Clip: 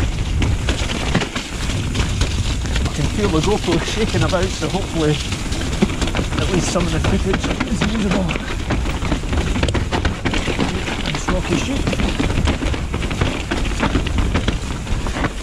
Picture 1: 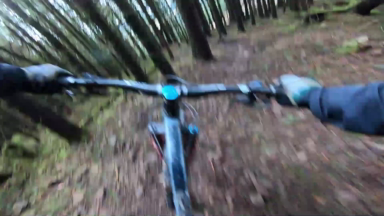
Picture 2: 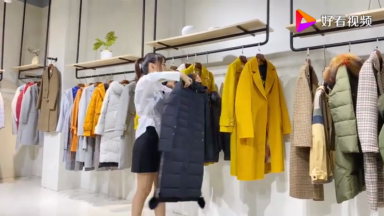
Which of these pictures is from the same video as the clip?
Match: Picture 1